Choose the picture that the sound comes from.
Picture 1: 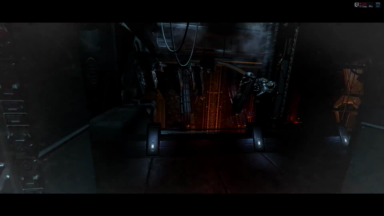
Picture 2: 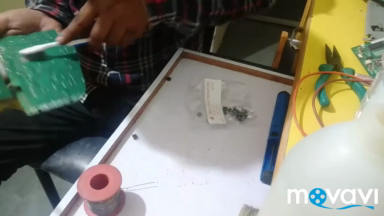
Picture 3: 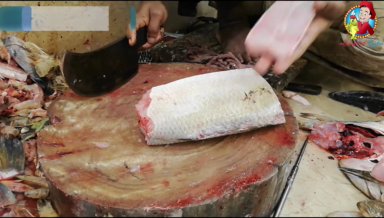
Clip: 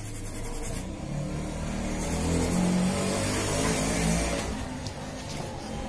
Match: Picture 2